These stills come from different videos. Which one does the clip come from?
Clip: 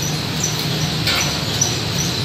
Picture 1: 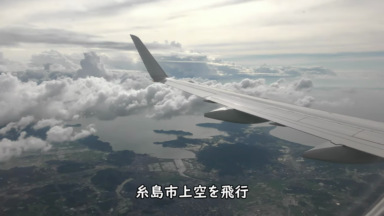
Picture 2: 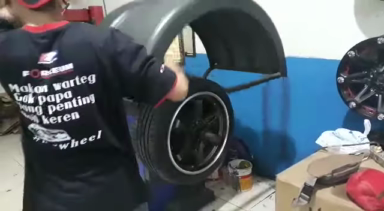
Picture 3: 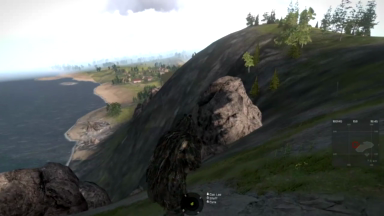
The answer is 2